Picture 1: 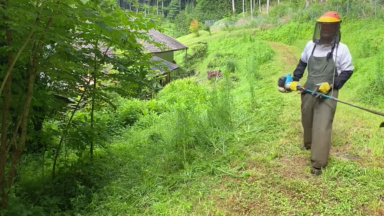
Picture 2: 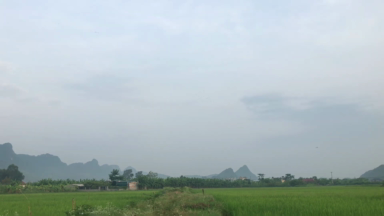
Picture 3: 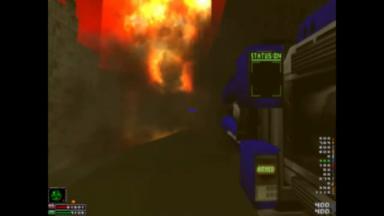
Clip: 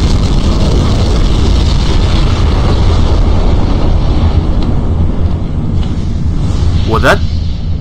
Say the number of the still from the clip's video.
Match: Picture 3